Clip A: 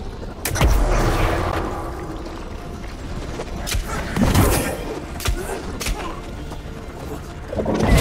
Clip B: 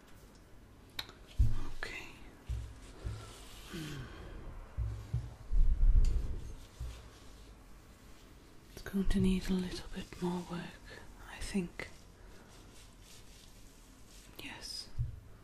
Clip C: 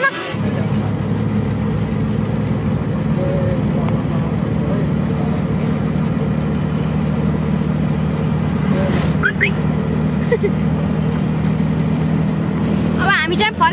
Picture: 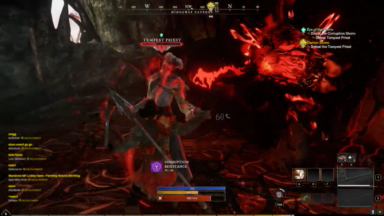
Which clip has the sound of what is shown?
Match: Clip A